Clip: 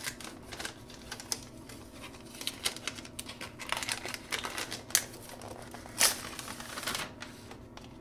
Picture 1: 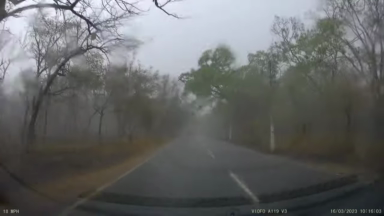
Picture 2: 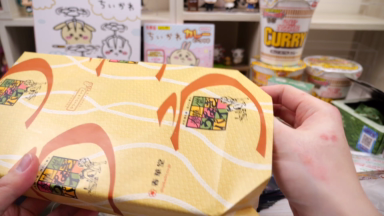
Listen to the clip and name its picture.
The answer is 2